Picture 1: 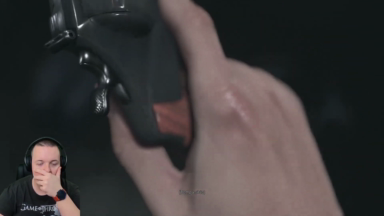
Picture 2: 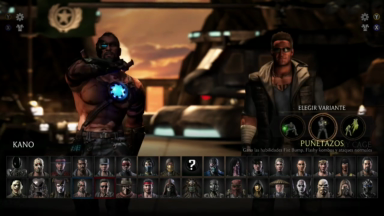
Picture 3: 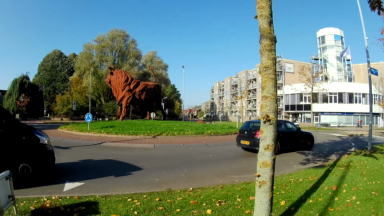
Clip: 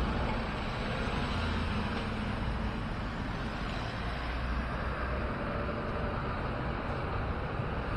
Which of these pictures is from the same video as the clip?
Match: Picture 3